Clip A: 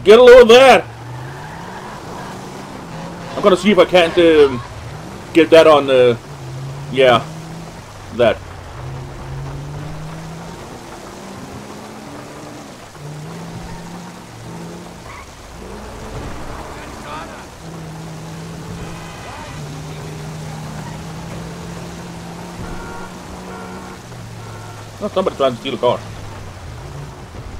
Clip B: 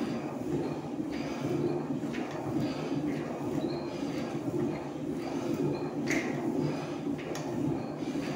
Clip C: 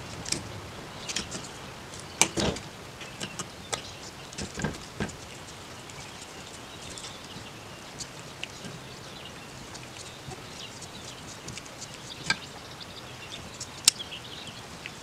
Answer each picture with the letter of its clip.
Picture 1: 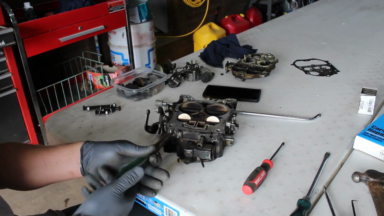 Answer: C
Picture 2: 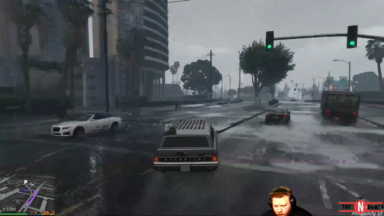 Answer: A